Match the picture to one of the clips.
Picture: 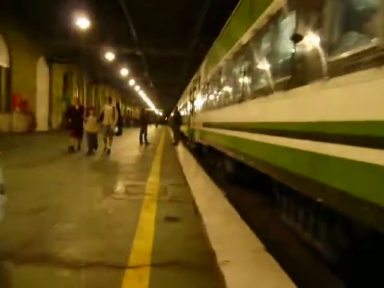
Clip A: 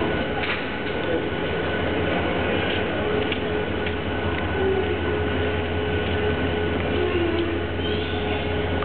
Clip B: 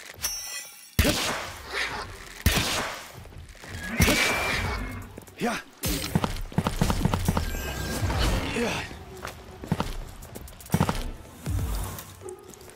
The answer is A